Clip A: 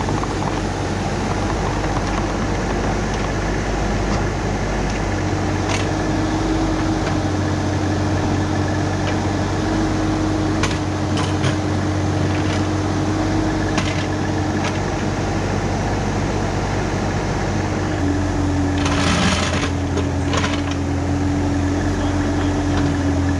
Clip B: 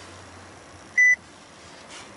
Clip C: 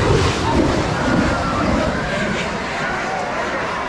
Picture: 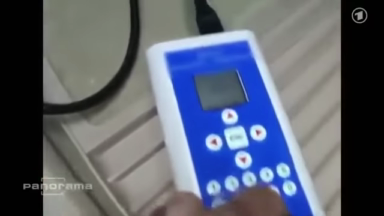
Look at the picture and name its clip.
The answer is B